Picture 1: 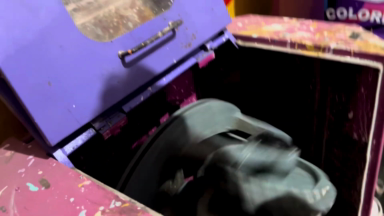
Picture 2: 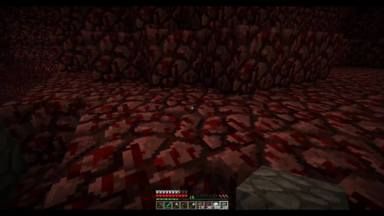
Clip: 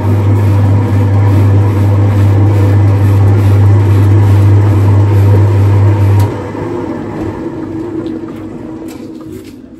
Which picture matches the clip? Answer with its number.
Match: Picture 1